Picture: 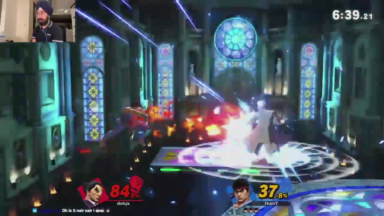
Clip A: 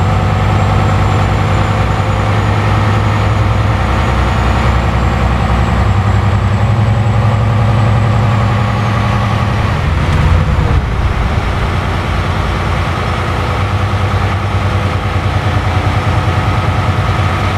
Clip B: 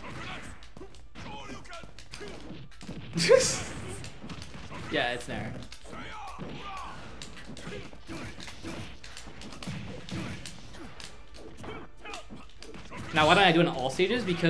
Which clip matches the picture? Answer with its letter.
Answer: B